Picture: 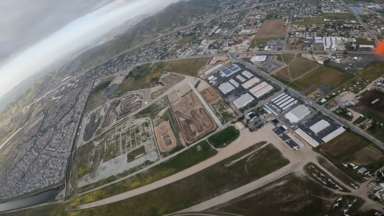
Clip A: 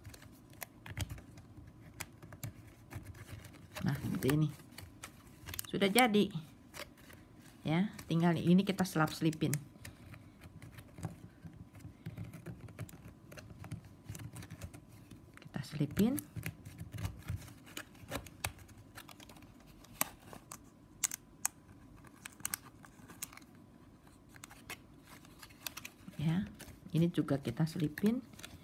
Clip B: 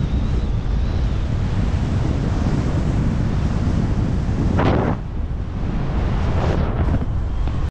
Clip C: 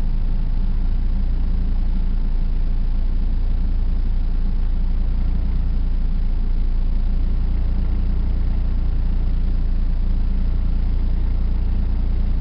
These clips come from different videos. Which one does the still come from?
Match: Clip B